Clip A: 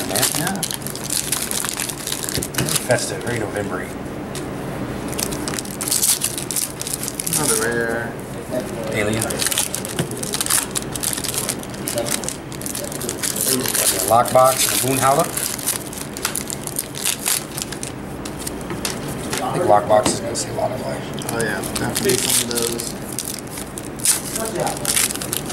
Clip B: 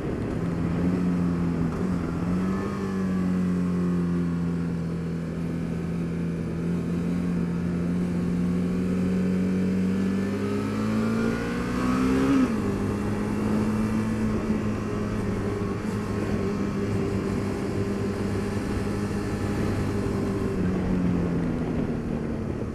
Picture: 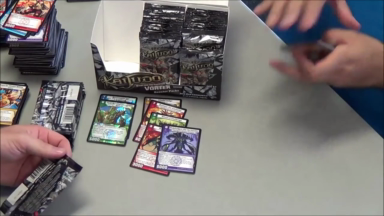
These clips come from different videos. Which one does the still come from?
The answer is A